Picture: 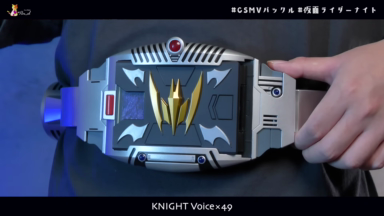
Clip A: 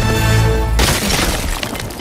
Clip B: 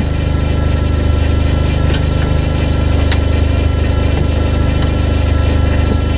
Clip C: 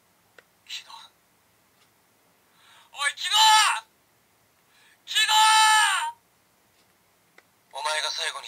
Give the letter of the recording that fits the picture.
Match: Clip C